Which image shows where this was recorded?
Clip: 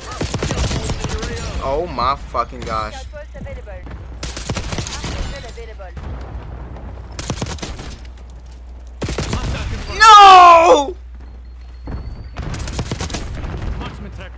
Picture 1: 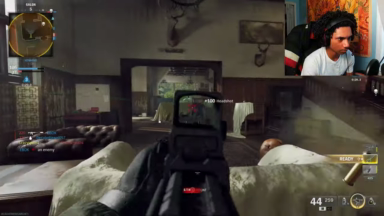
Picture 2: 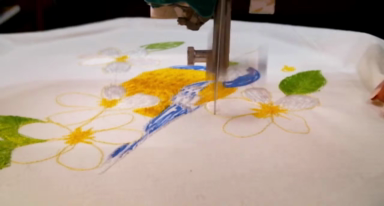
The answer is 1